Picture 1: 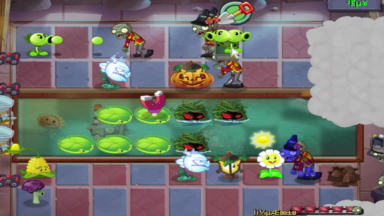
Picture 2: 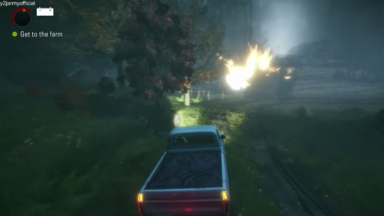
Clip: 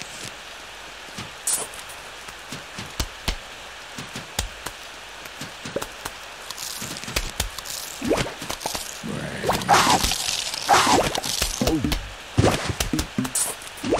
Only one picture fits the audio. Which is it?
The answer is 1